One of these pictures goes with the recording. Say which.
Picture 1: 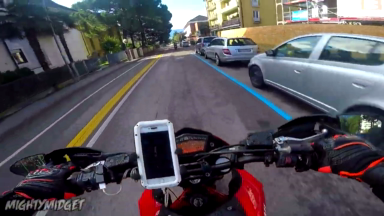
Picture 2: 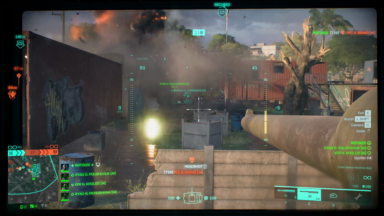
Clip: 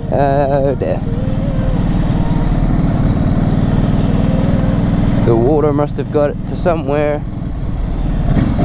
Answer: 1